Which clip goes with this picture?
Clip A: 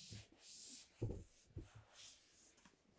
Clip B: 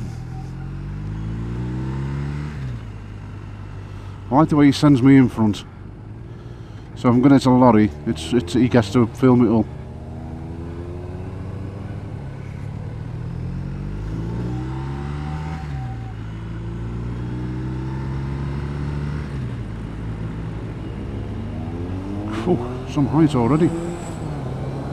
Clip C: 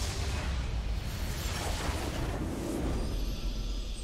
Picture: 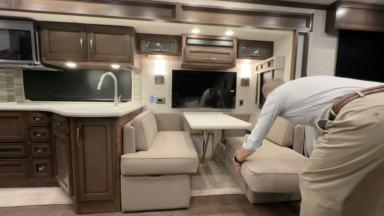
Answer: A